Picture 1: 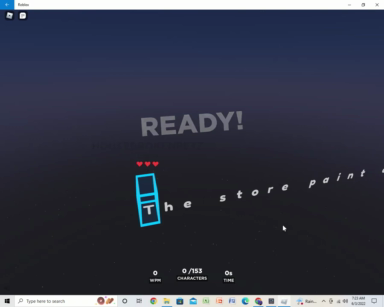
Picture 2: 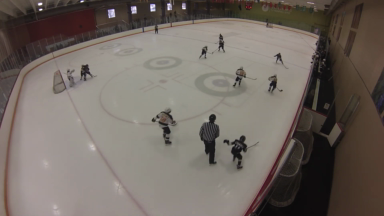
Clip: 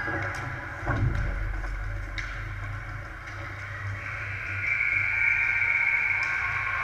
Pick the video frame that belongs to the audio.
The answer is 2